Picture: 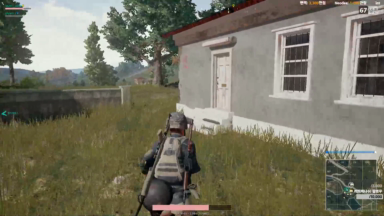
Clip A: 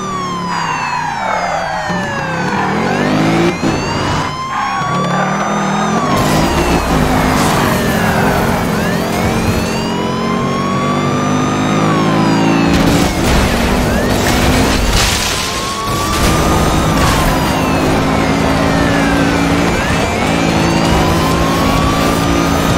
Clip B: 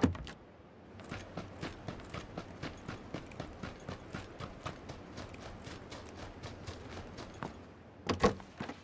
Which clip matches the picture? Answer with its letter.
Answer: B